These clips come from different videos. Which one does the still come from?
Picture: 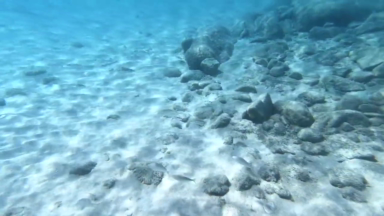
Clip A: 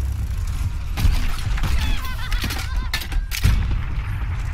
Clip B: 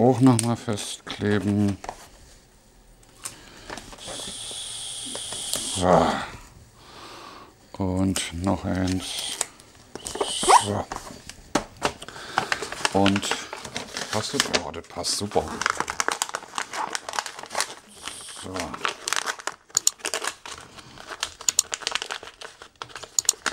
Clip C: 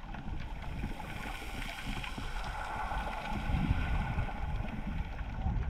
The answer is C